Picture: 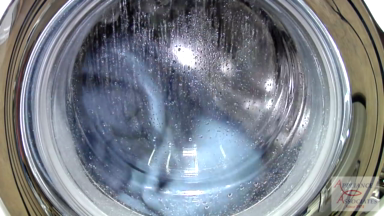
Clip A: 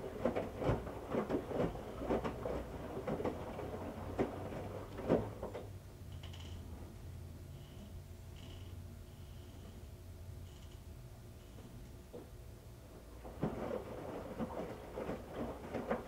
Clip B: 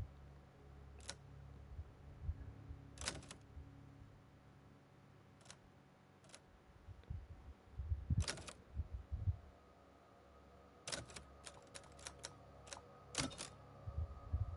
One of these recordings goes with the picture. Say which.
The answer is A